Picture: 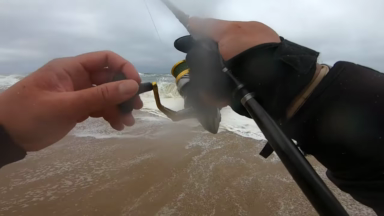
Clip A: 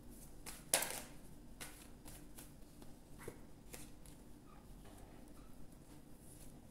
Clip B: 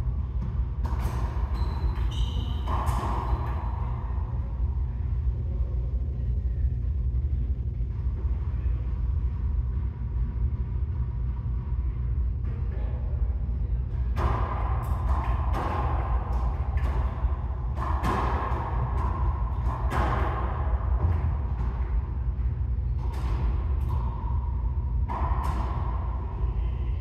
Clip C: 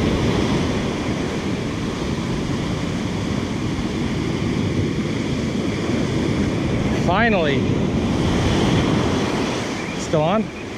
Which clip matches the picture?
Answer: C